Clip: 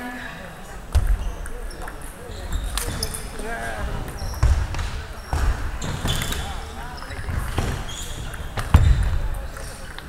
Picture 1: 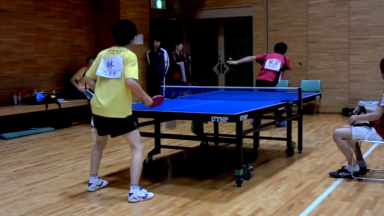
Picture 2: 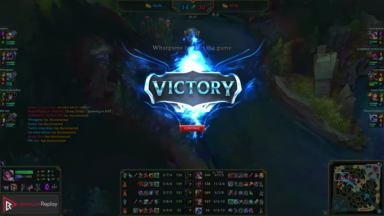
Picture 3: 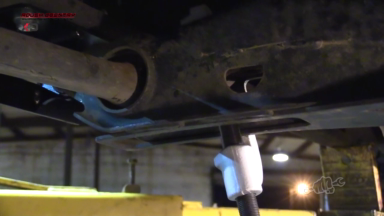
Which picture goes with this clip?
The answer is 1